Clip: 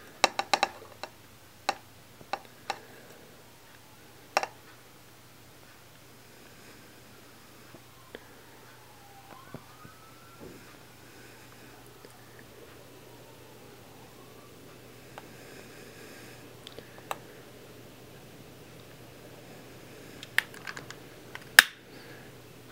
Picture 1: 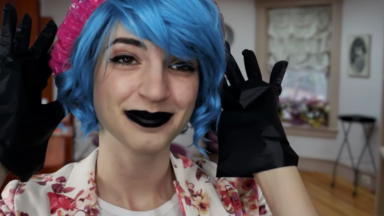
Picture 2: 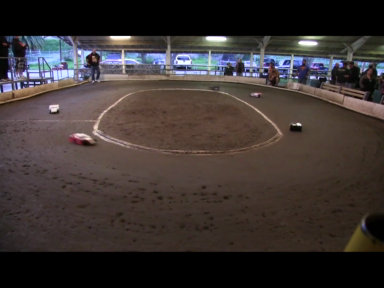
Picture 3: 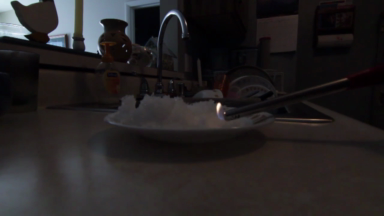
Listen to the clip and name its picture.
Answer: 3